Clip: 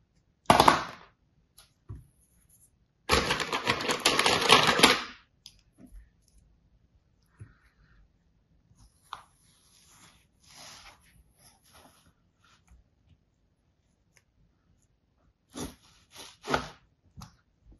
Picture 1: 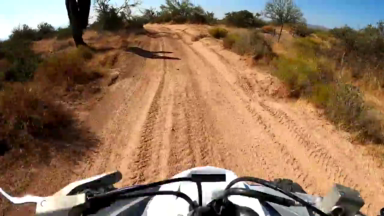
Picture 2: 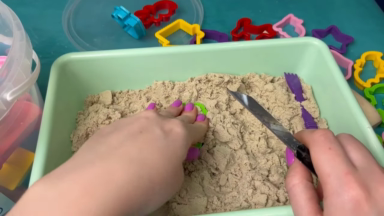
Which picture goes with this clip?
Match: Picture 2